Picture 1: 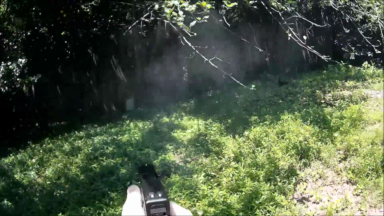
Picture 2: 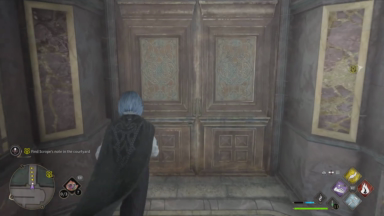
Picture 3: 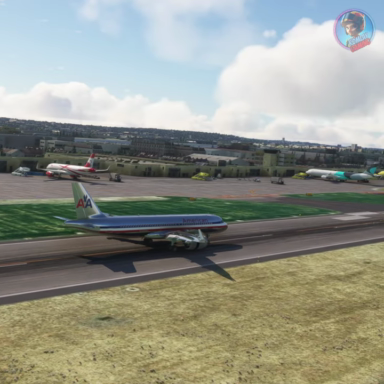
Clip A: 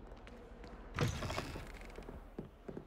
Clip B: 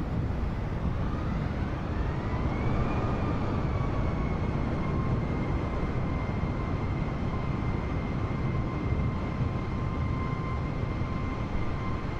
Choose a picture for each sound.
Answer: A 2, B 3